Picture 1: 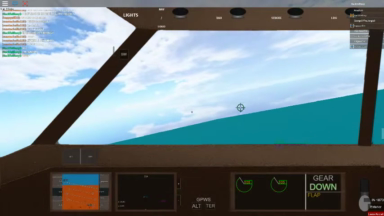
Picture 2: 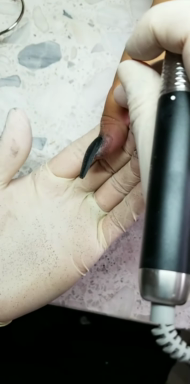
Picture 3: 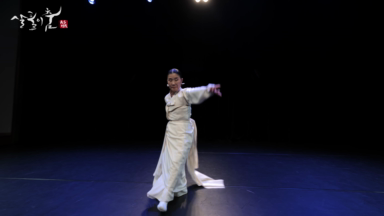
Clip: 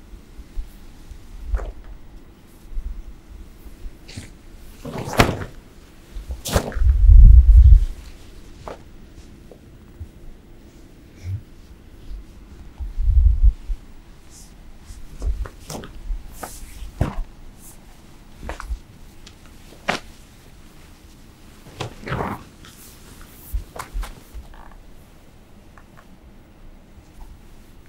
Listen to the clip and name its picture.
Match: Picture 3